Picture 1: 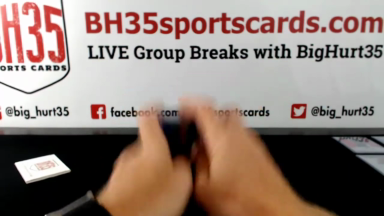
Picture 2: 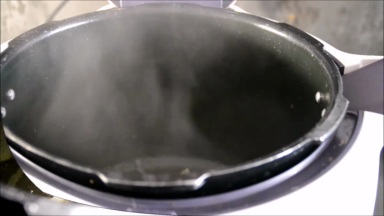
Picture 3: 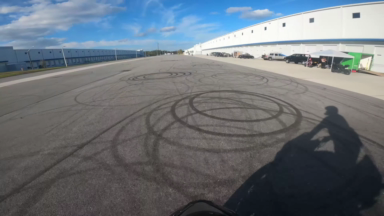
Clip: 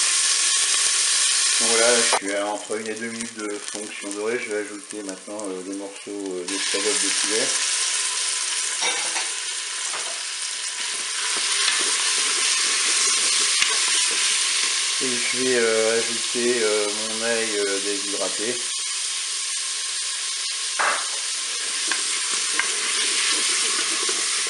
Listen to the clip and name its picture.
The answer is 2